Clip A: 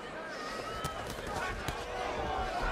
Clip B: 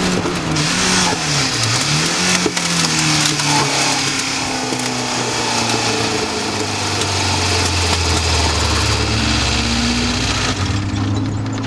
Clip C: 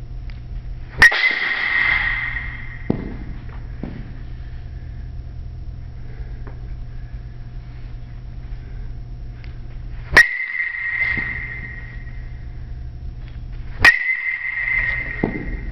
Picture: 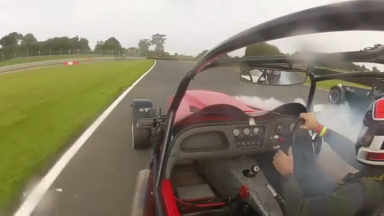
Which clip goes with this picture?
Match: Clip B